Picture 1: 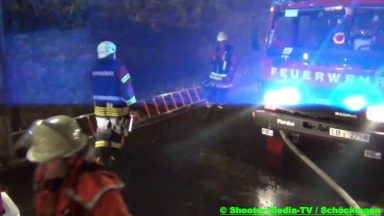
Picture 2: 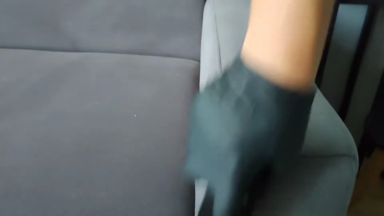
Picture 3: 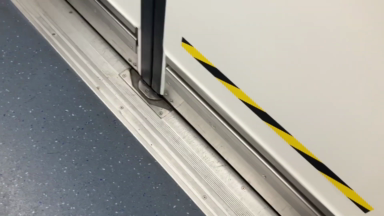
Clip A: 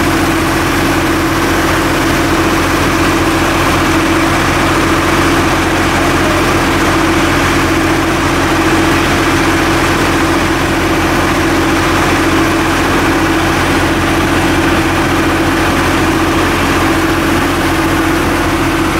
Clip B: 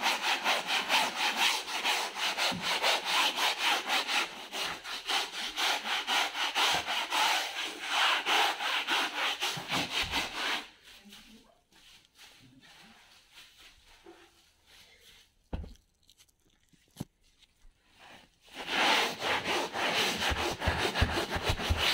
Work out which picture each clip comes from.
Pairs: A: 1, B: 2